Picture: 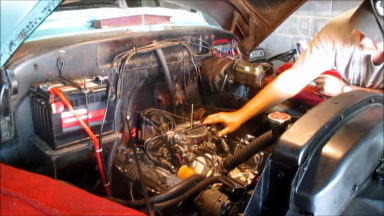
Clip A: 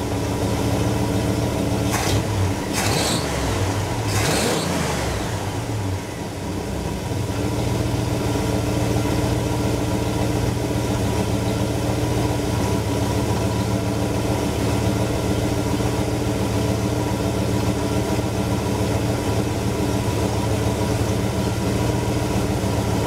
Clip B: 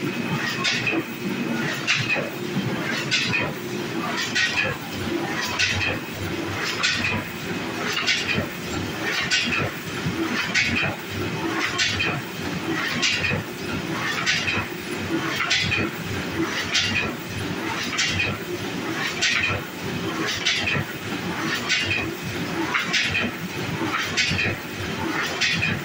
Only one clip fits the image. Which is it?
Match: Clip A